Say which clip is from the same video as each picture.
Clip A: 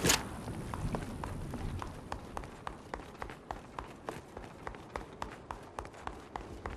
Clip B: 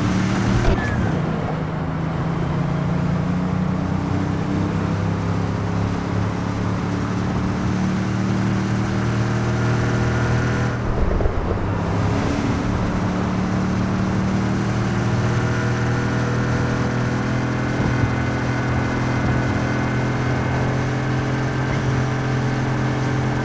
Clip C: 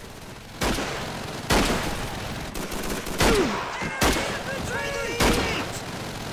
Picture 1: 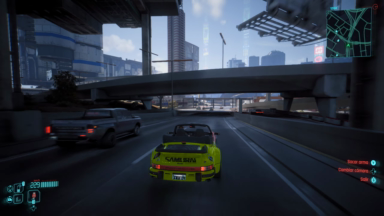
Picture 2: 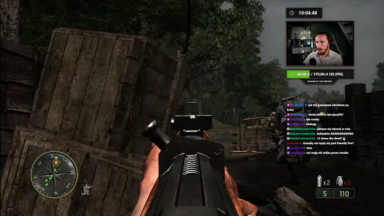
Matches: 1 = B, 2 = C